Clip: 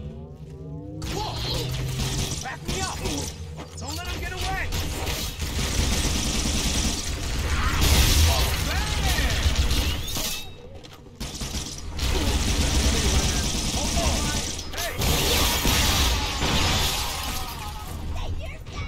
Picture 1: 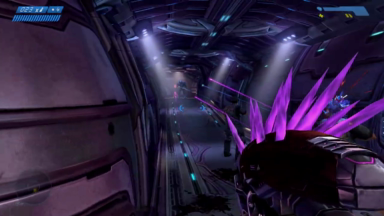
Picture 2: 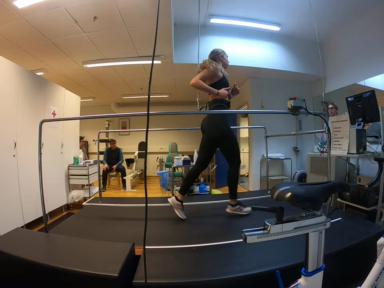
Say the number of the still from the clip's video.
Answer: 1